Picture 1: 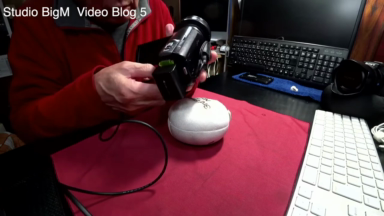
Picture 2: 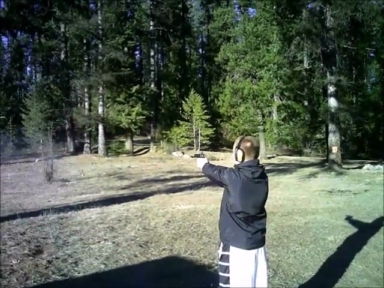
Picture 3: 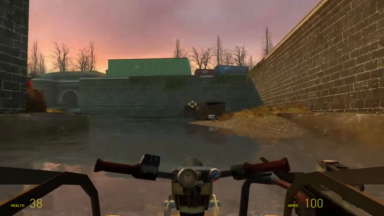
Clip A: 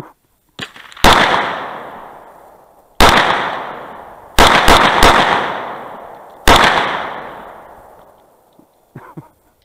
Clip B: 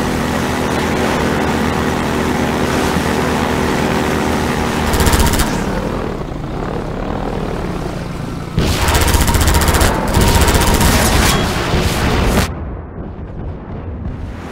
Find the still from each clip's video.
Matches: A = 2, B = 3